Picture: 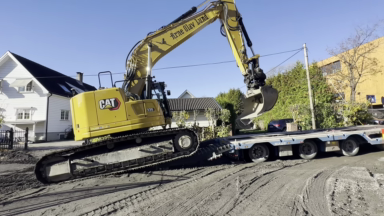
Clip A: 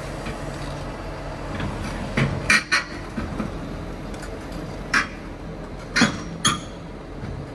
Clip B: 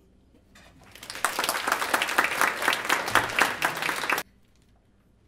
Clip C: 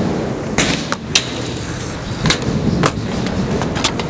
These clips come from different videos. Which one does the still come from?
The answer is A